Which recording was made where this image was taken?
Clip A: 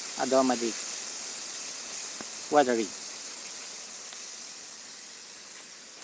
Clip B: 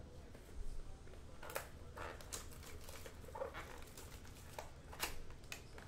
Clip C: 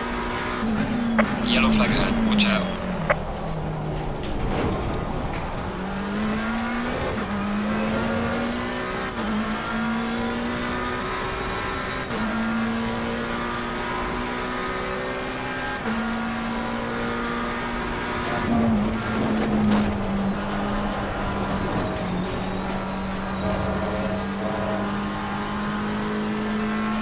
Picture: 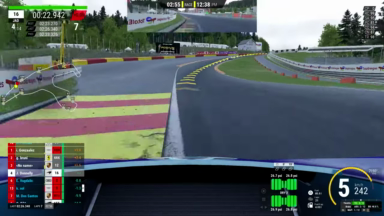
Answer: C